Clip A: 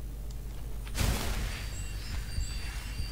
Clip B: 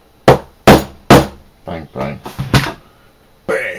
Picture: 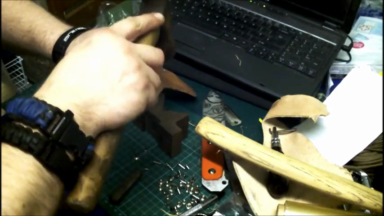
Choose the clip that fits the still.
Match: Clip B